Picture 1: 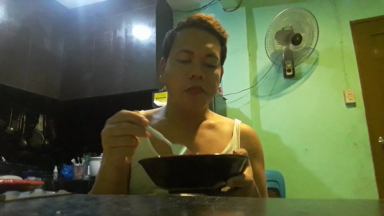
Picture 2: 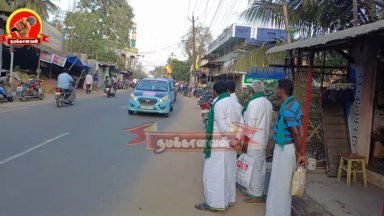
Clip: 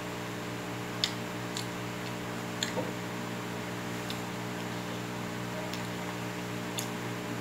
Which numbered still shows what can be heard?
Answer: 1